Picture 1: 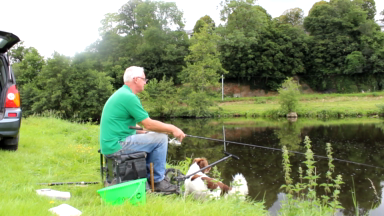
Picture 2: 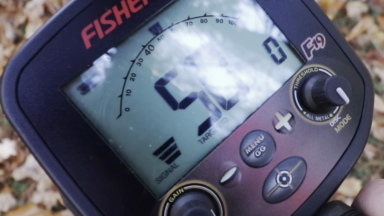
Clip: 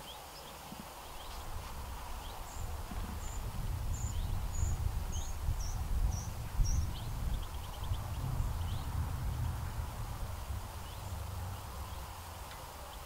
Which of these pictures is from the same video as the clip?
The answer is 1